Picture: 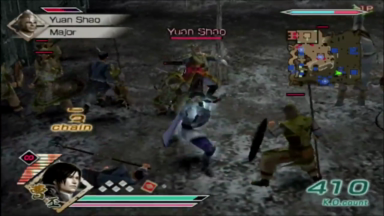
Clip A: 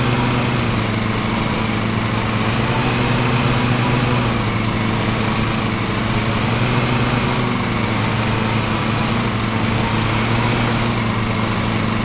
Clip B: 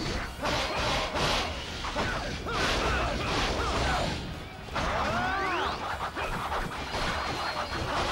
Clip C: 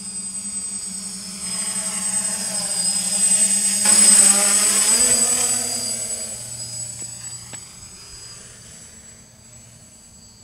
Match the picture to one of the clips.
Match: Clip B